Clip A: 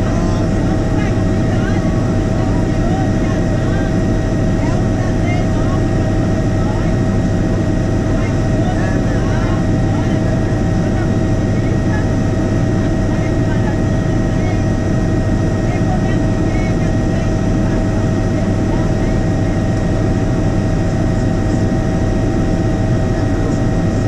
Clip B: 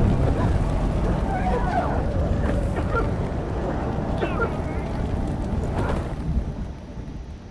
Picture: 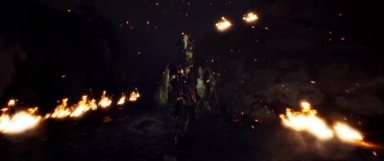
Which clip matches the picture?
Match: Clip B